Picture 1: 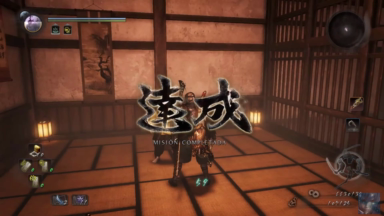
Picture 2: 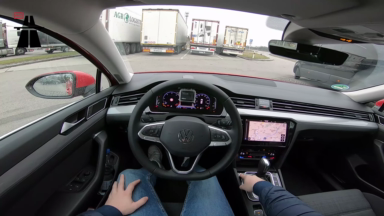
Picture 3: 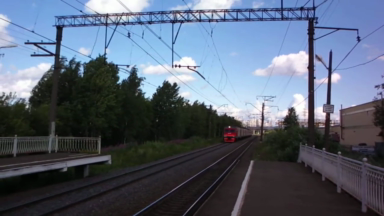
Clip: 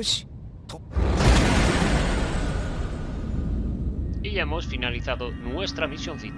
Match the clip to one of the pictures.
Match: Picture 1